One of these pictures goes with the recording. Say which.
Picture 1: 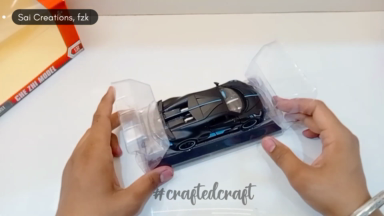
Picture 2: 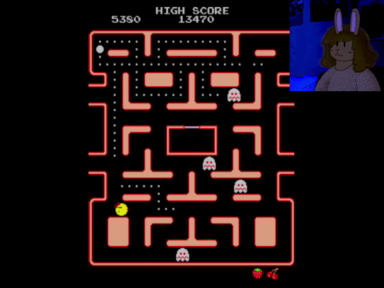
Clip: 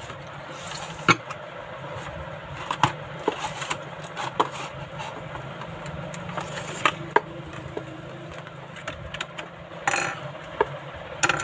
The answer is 1